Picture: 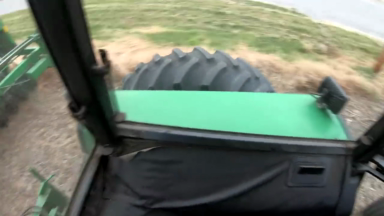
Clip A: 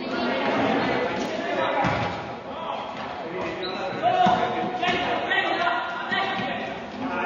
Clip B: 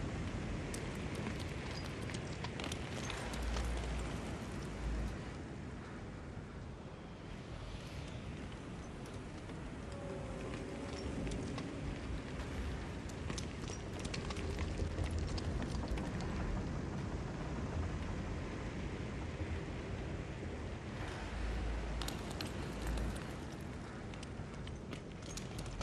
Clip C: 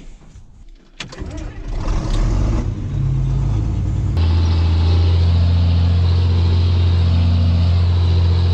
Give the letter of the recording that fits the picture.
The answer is C